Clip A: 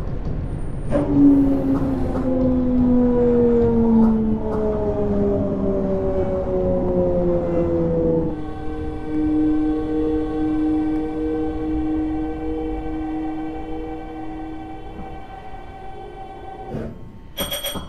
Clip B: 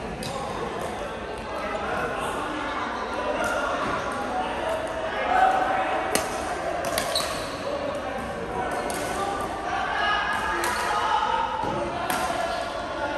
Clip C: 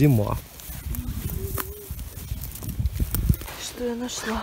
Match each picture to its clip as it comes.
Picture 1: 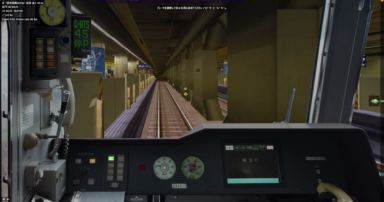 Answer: A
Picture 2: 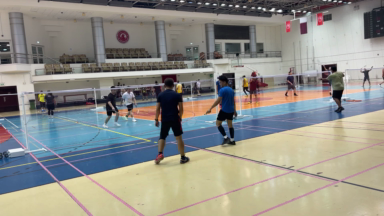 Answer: B